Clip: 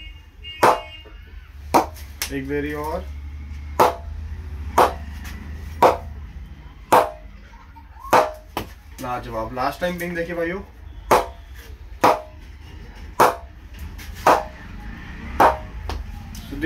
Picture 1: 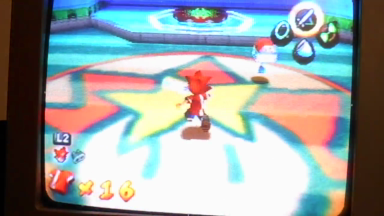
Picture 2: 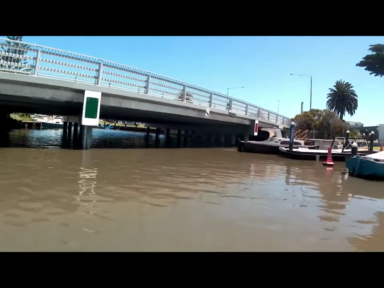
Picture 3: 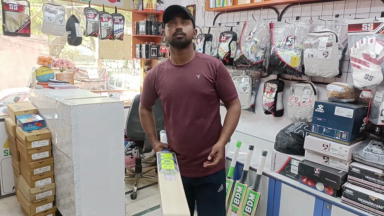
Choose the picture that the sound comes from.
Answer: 3